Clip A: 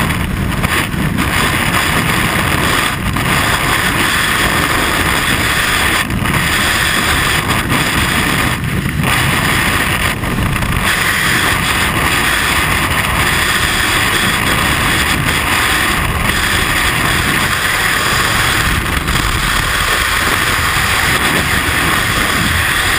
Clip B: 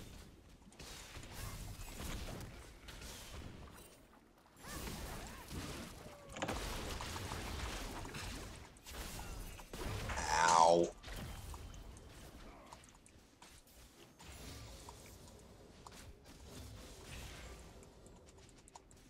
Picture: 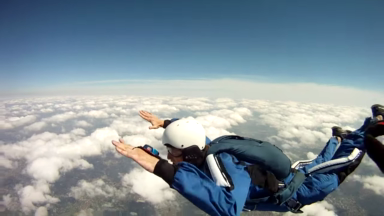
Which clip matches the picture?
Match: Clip A